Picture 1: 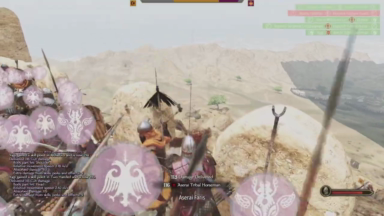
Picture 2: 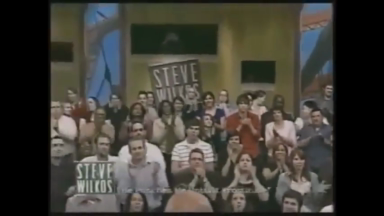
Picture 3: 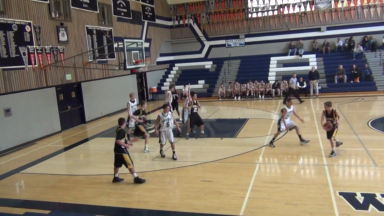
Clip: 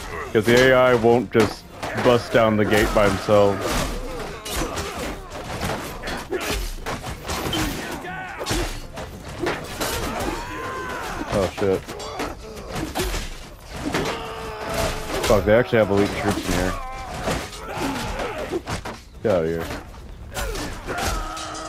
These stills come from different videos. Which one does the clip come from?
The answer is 1